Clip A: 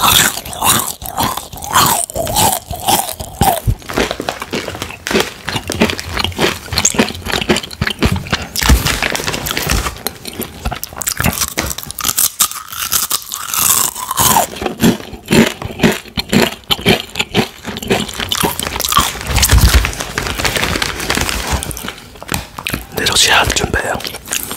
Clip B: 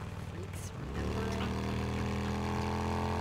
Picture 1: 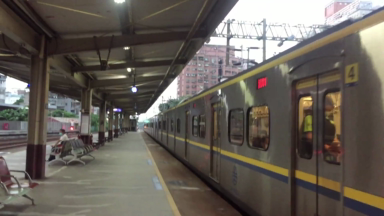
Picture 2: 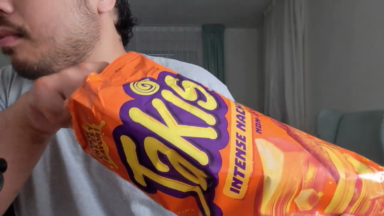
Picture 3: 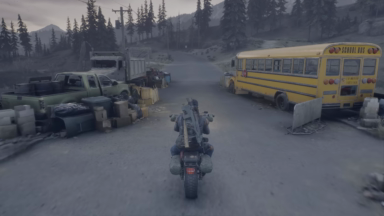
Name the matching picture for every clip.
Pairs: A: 2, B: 3